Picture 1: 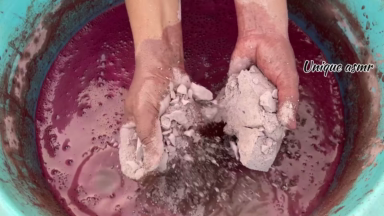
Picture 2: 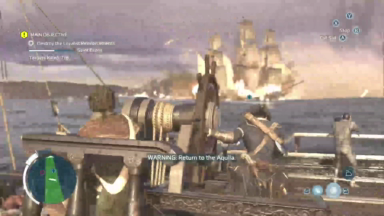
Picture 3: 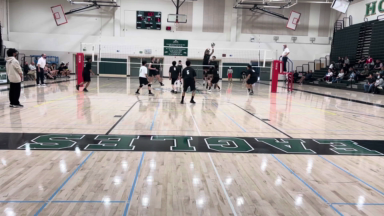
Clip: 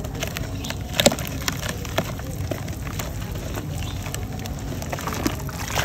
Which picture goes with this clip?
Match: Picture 1